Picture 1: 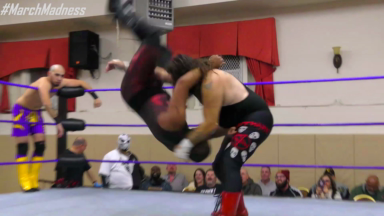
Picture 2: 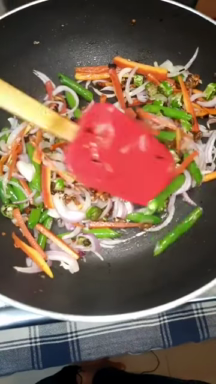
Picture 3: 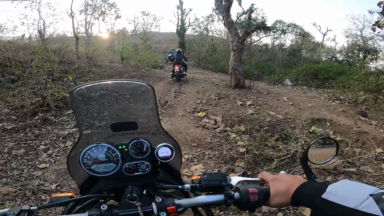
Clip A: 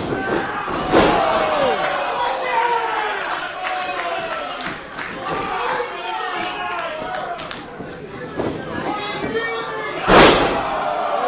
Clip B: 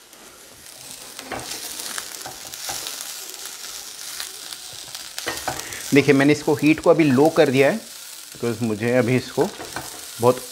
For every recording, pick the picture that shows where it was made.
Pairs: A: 1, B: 2